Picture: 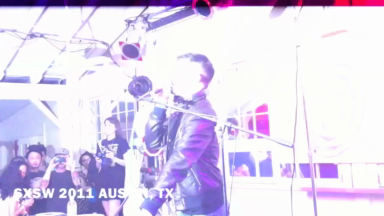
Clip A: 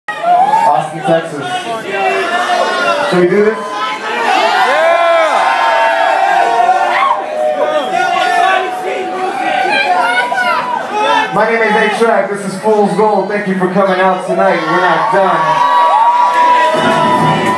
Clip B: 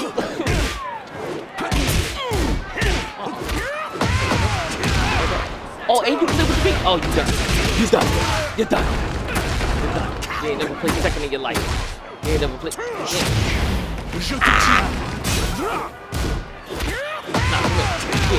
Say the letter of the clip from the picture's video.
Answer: A